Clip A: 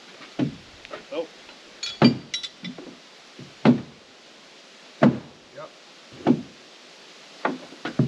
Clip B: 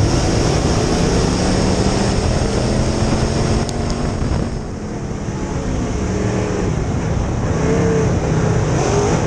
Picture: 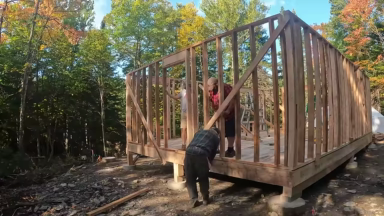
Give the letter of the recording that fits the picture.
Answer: A